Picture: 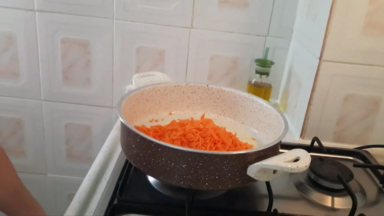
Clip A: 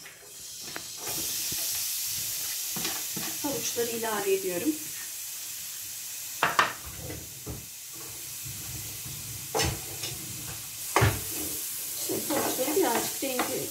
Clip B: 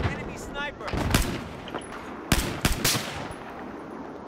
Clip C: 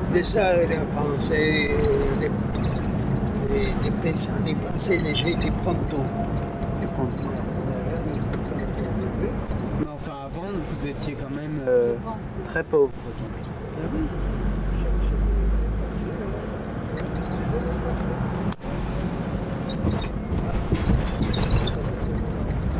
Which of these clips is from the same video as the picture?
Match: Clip A